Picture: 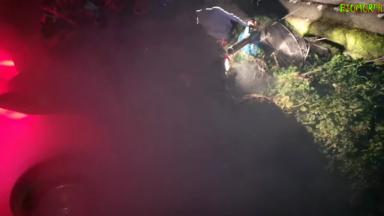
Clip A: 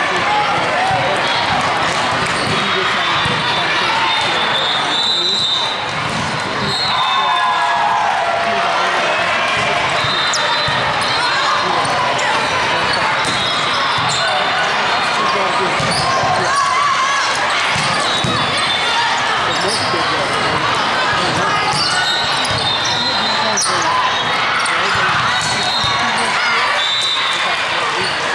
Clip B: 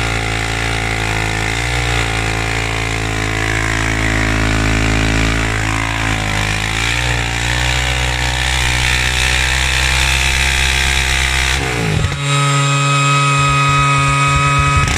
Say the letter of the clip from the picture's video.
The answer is B